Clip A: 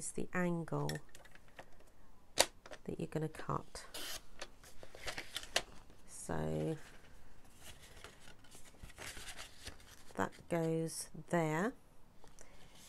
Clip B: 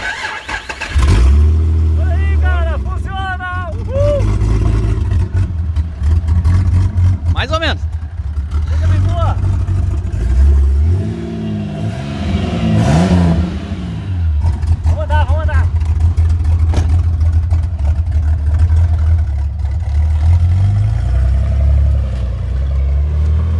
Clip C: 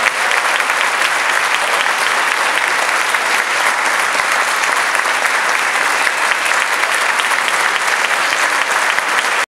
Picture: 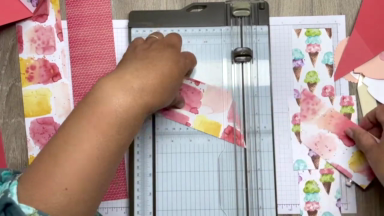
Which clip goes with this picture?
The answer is A